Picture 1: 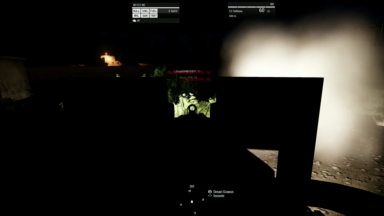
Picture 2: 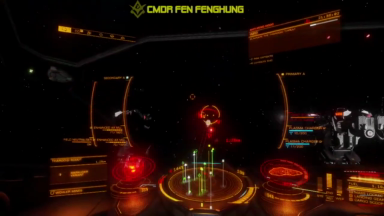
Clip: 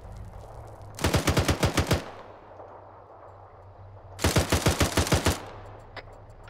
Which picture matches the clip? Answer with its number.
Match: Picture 1